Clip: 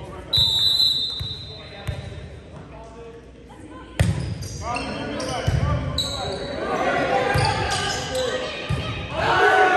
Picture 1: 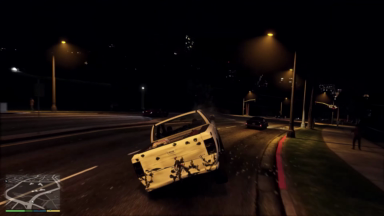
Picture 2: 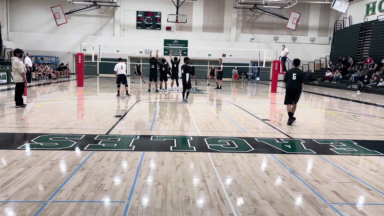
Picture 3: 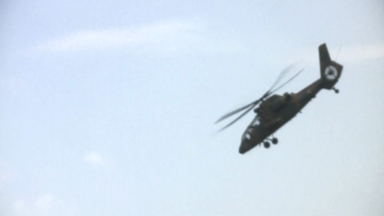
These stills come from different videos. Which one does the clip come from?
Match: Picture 2